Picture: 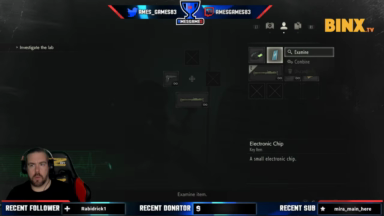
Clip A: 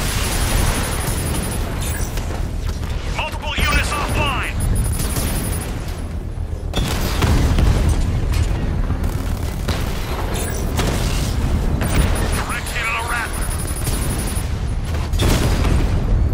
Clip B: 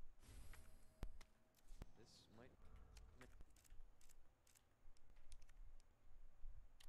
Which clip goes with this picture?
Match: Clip B